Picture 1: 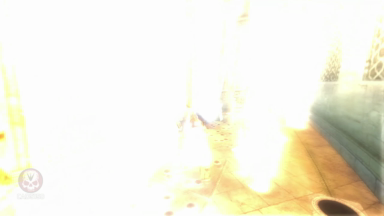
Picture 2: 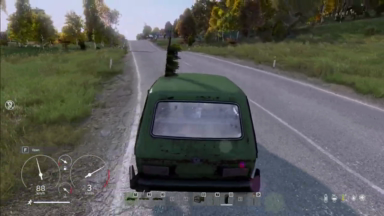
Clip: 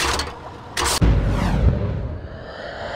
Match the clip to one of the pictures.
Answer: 1